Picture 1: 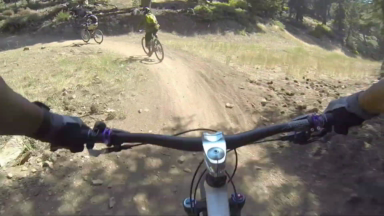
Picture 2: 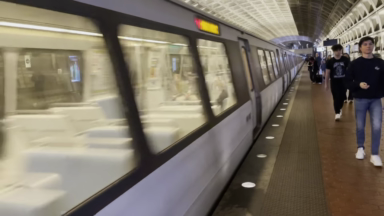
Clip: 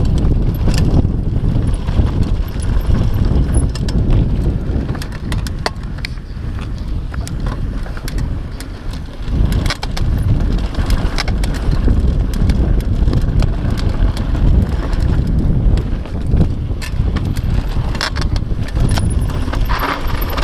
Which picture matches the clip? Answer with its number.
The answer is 1